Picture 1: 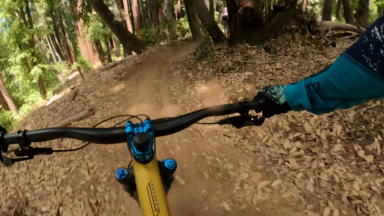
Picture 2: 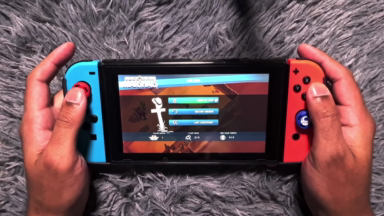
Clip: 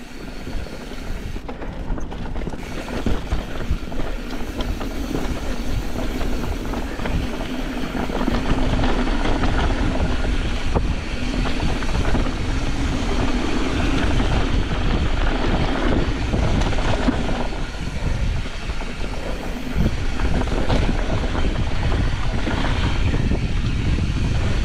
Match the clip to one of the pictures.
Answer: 1